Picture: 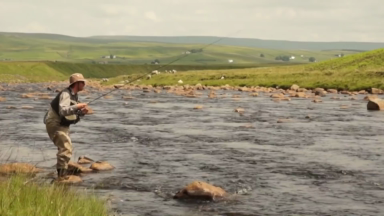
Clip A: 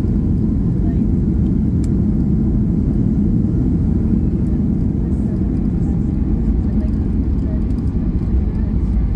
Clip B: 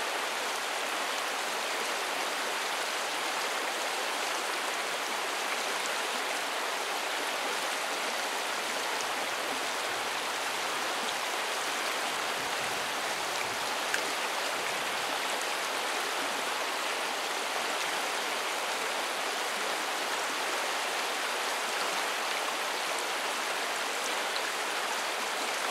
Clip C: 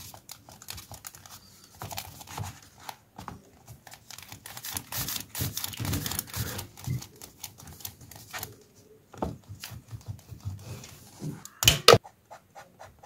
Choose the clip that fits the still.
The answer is B